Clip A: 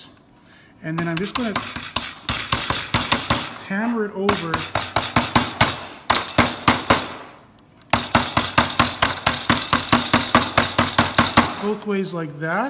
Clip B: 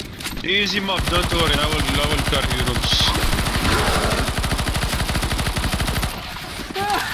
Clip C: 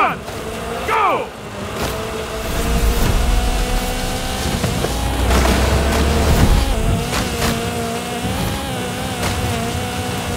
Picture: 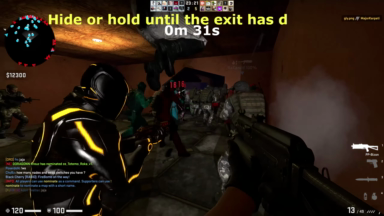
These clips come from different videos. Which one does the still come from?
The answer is B